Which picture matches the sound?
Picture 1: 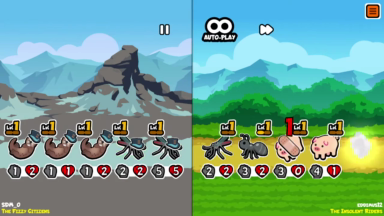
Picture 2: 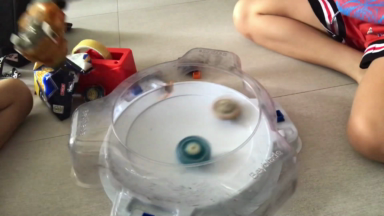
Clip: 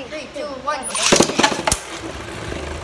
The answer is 2